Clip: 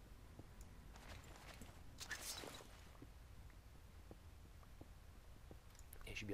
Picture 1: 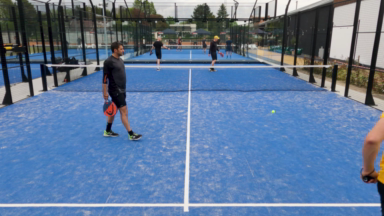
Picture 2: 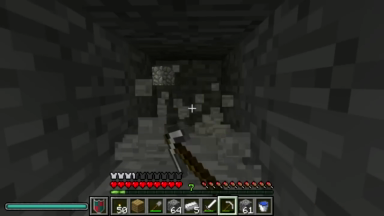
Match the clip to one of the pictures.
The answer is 2